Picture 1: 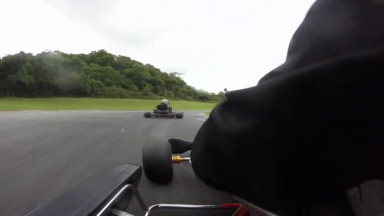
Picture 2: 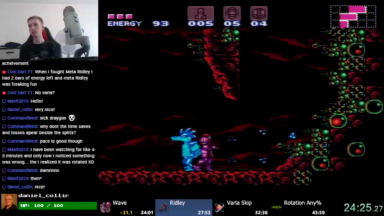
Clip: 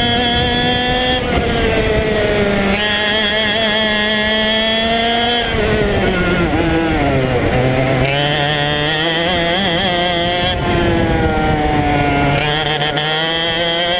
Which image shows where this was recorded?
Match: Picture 1